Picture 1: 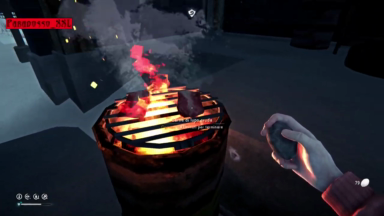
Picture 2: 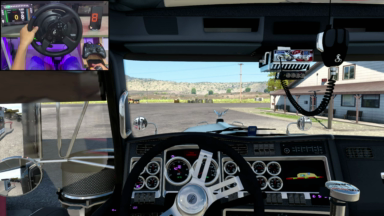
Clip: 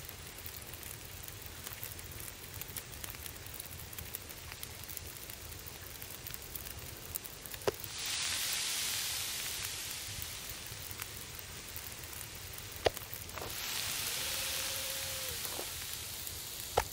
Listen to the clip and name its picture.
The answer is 1